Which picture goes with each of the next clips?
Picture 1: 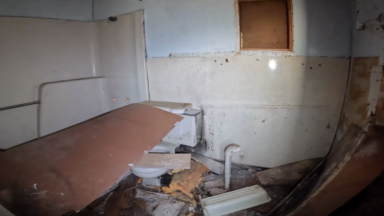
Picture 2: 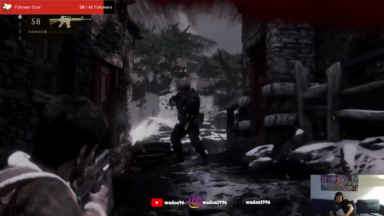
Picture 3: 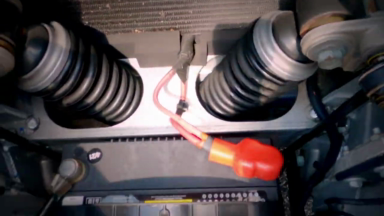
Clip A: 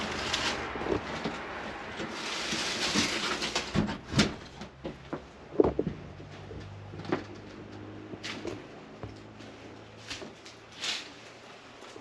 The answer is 1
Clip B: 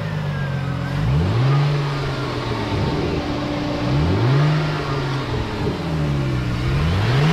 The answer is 3